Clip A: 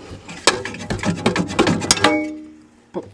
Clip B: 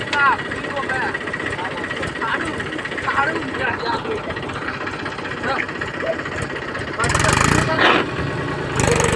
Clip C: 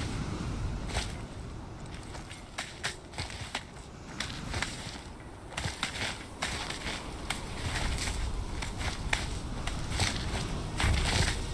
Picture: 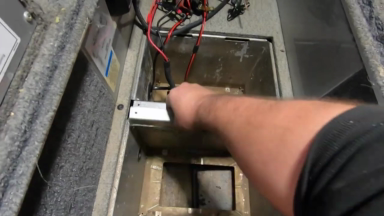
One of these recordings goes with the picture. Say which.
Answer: A